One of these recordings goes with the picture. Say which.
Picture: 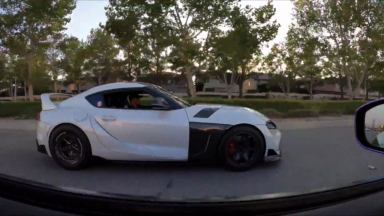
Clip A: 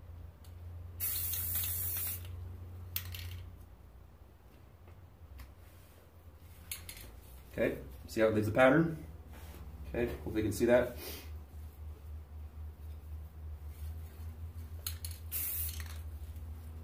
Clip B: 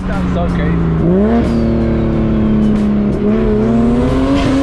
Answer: B